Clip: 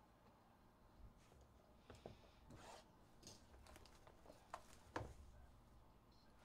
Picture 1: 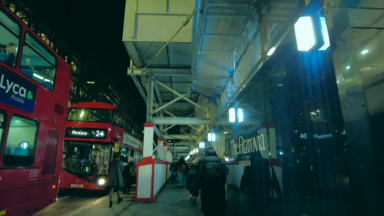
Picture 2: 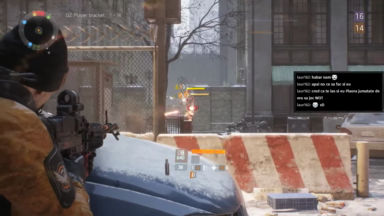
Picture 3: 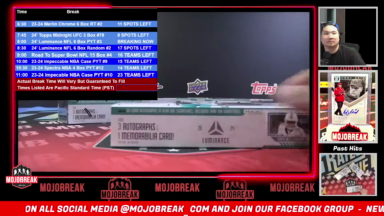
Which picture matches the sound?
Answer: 3